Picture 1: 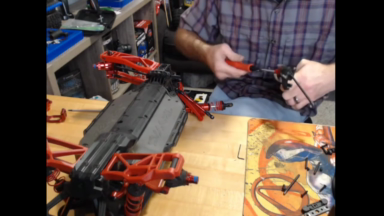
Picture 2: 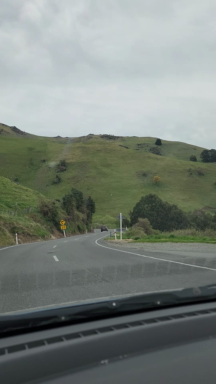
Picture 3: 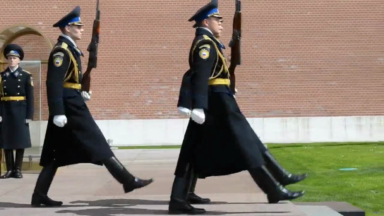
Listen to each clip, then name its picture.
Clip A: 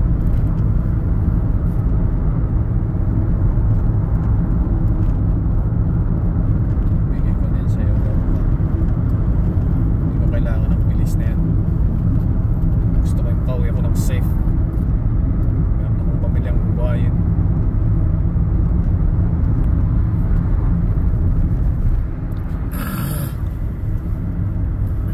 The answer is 2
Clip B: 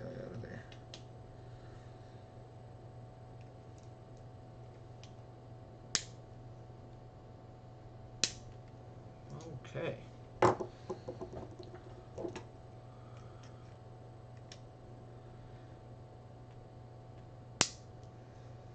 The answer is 1